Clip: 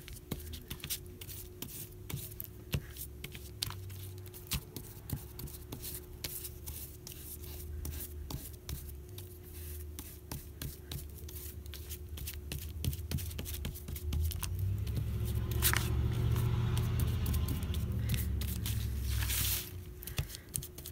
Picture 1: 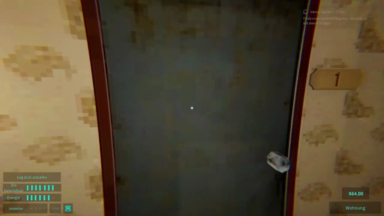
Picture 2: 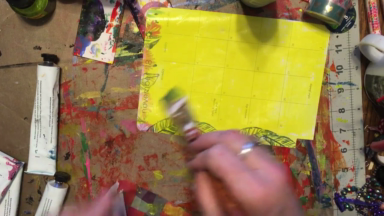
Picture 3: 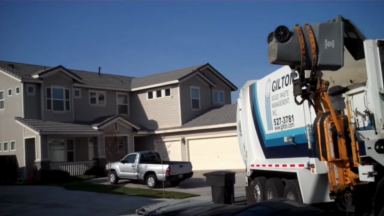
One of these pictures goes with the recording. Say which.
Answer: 2